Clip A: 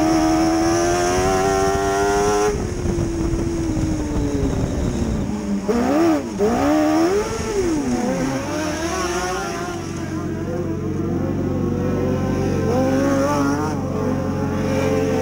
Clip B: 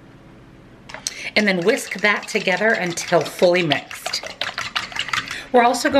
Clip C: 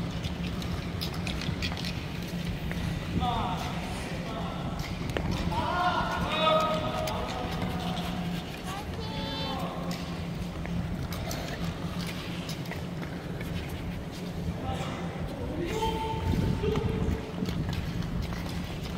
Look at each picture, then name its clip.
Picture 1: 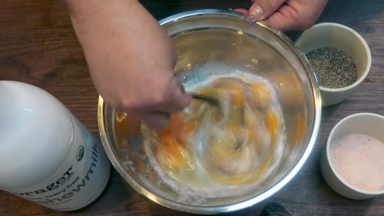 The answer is B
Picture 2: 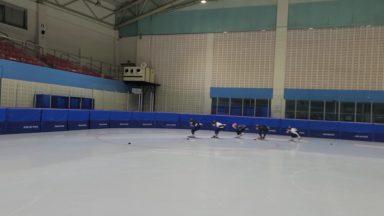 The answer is C